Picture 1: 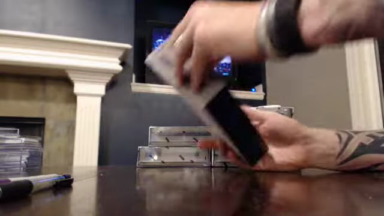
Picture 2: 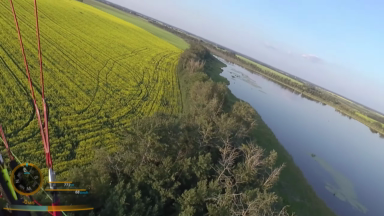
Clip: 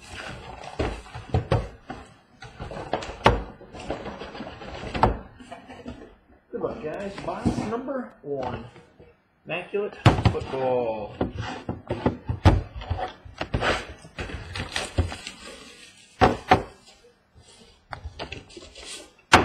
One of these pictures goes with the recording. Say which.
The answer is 1